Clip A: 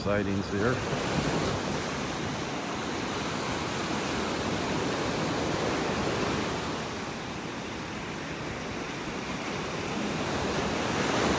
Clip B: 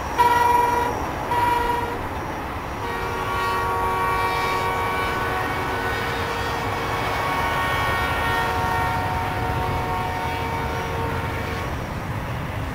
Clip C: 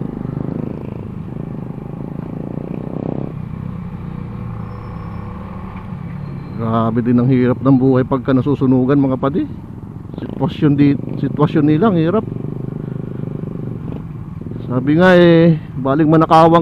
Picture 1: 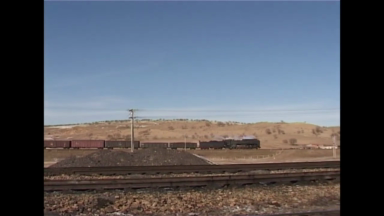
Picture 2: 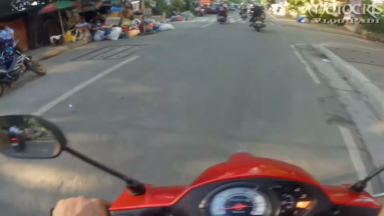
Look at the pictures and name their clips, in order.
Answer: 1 B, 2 C